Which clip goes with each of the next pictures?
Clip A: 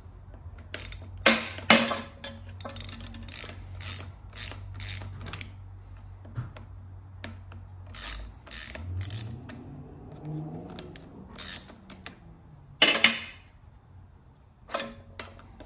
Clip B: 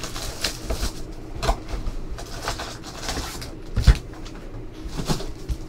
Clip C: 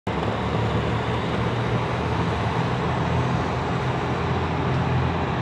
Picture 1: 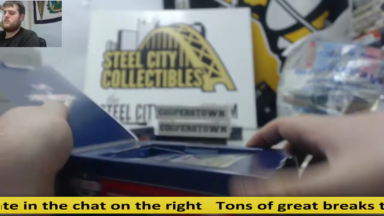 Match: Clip B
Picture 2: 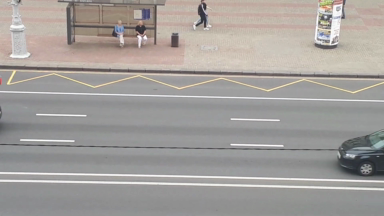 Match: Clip C